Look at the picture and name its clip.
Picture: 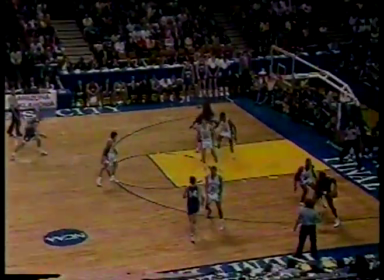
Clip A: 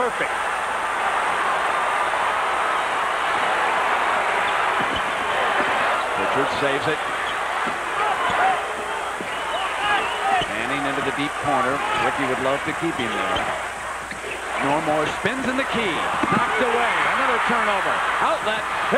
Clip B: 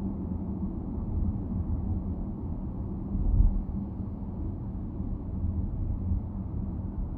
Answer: A